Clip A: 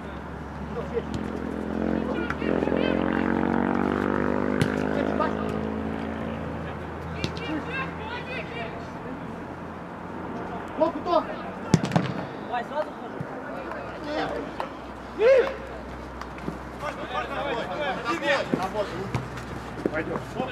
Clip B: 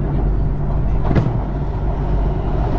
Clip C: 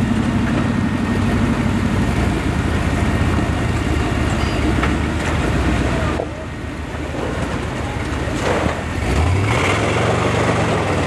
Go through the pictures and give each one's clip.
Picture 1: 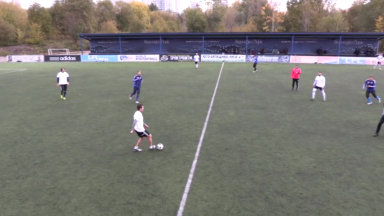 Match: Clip A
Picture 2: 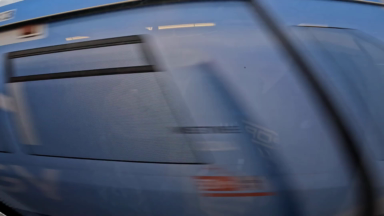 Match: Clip B